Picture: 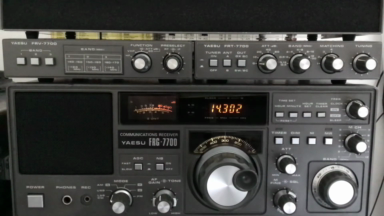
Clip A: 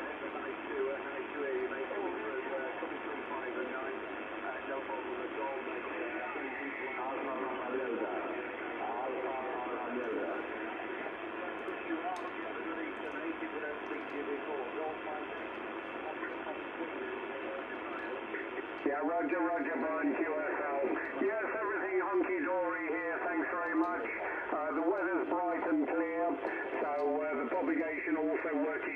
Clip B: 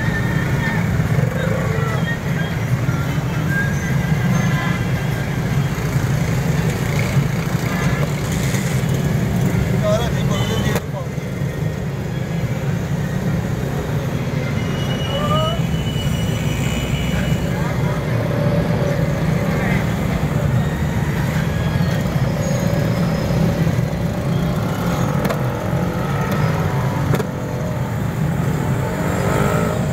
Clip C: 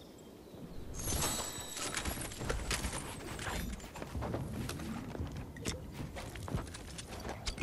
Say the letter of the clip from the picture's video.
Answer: A